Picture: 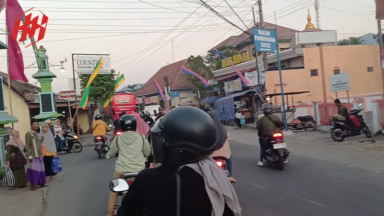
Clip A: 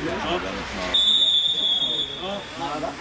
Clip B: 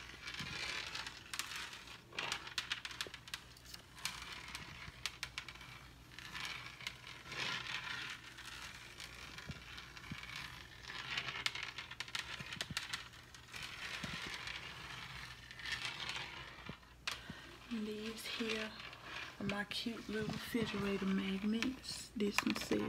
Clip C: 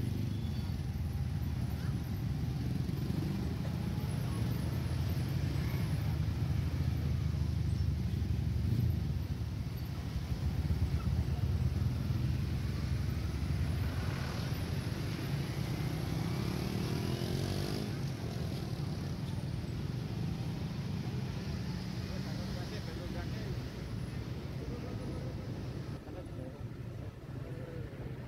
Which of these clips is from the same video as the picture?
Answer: C